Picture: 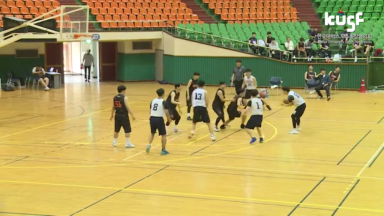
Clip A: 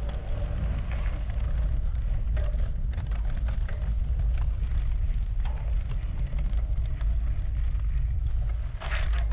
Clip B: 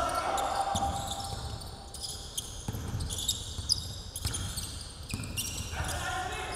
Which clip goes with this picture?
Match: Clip B